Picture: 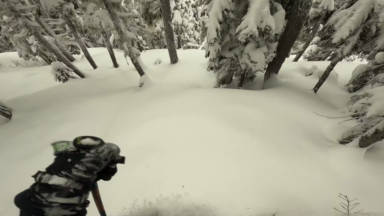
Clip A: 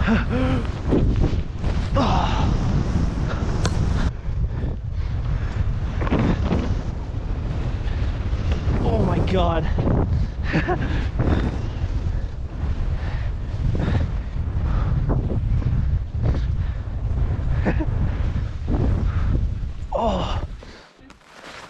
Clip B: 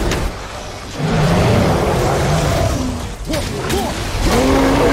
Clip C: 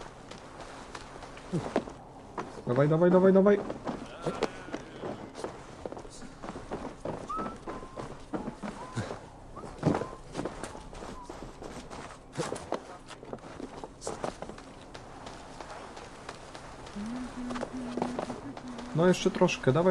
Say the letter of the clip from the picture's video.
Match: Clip A